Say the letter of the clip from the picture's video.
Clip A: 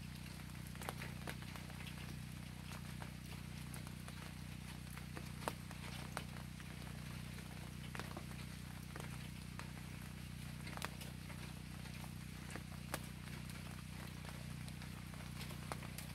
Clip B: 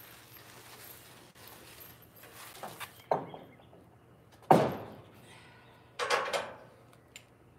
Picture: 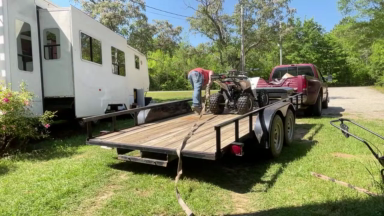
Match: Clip B